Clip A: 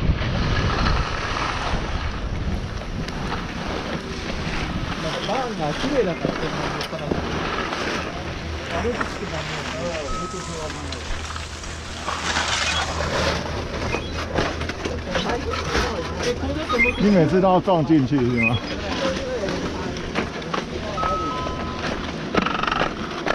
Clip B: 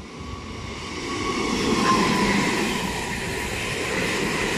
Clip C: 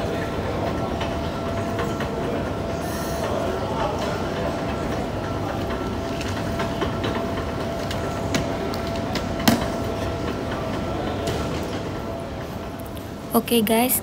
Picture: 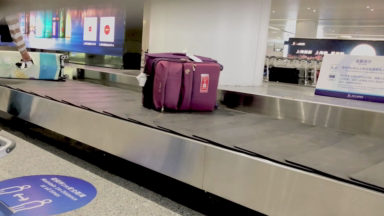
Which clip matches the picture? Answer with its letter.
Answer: C